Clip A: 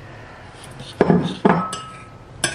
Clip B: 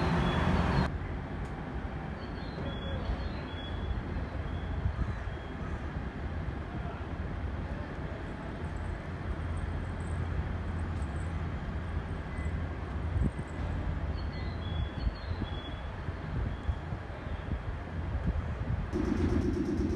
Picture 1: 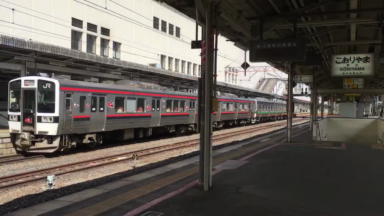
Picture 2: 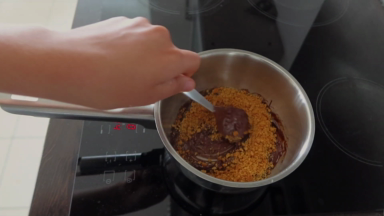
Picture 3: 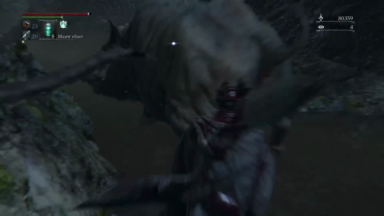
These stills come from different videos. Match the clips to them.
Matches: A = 2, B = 1